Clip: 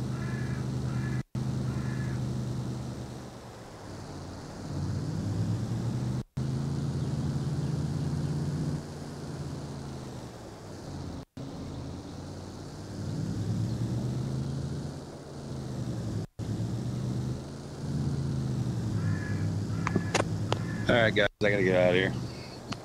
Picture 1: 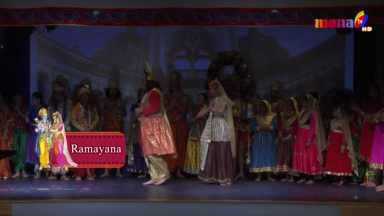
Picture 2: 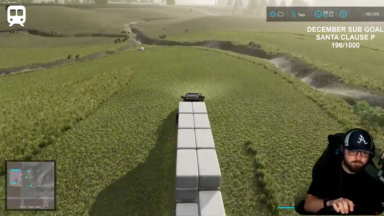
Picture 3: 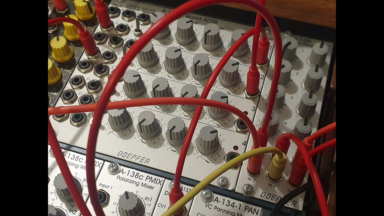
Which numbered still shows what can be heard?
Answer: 2